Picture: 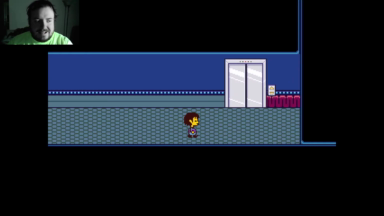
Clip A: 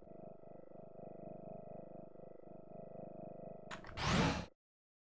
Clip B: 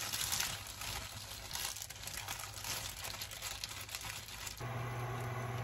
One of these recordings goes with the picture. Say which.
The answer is A